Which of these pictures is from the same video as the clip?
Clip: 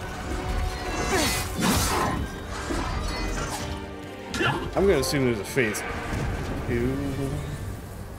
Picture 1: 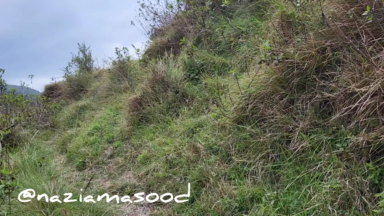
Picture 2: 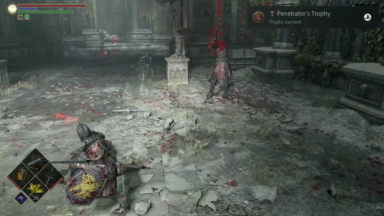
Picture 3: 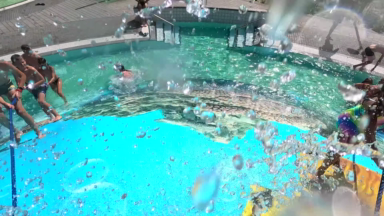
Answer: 2